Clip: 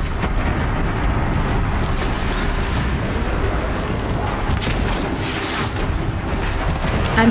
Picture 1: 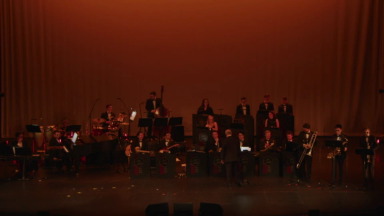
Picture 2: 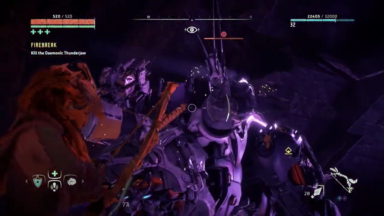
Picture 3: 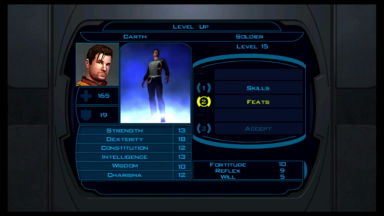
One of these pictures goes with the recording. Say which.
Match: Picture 2